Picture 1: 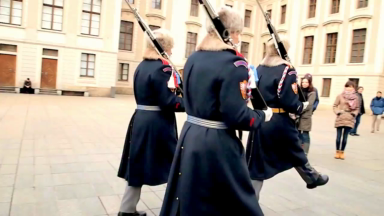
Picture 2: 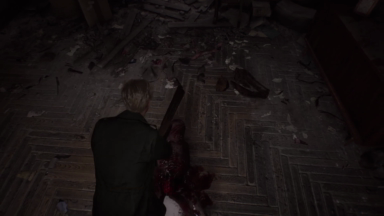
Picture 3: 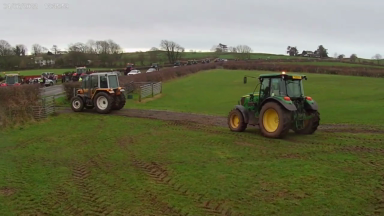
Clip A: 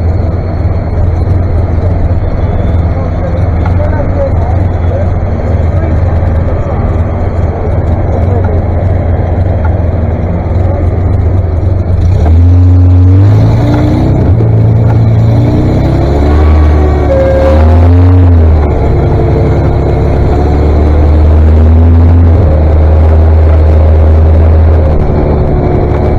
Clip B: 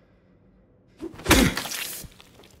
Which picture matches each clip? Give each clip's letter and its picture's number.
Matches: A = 3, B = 2